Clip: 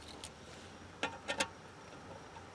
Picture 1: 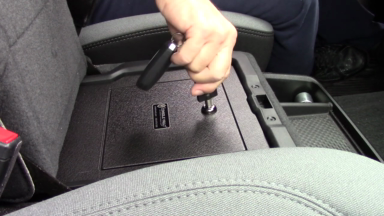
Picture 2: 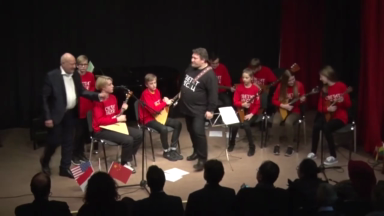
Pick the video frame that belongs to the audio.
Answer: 1